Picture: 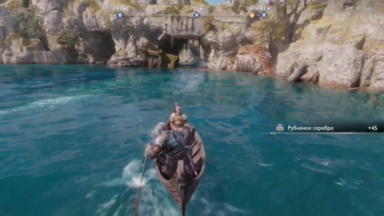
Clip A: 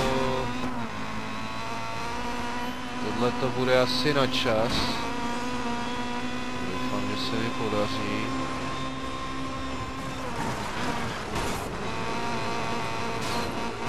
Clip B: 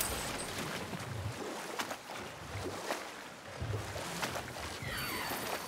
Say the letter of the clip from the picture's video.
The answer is B